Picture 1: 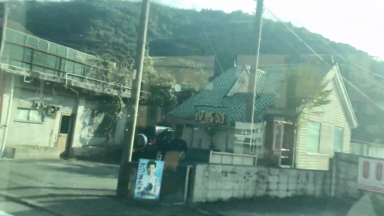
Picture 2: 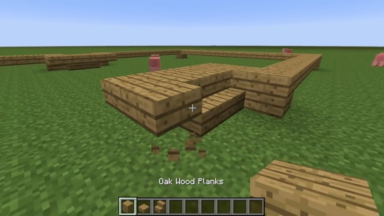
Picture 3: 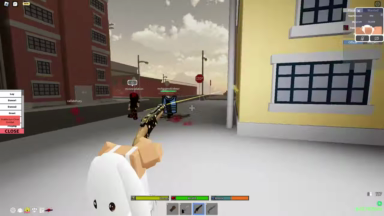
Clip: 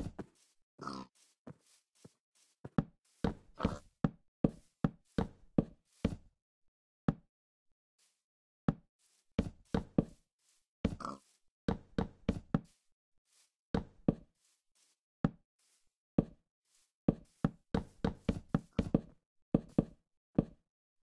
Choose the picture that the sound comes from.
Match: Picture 2